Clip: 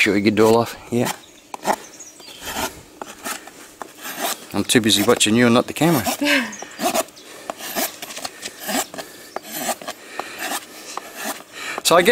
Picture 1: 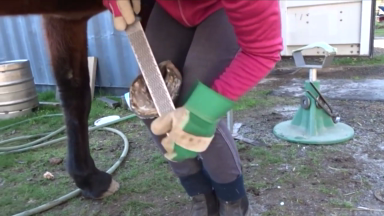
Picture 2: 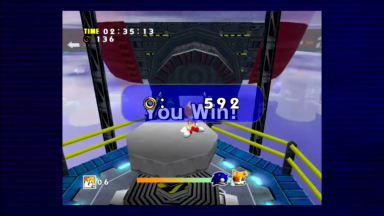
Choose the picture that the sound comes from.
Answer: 1